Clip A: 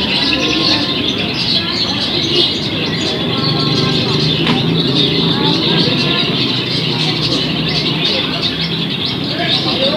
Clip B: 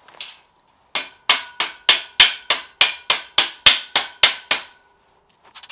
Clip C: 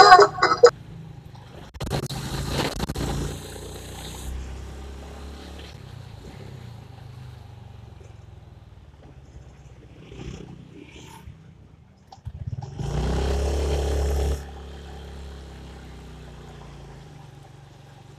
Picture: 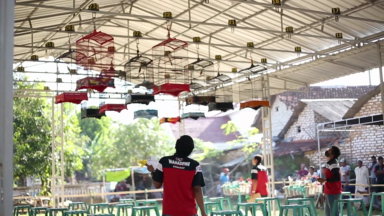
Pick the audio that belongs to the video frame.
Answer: A